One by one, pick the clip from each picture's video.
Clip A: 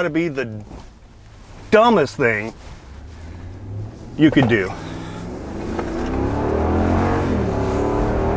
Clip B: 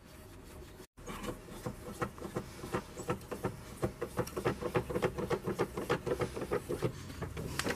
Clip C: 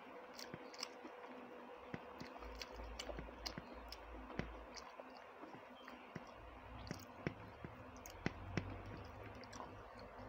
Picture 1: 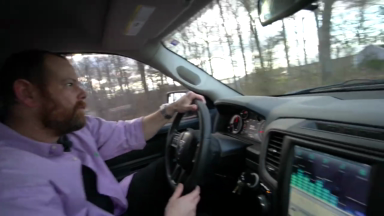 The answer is A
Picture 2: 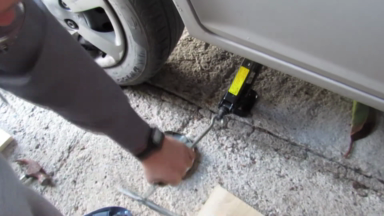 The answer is B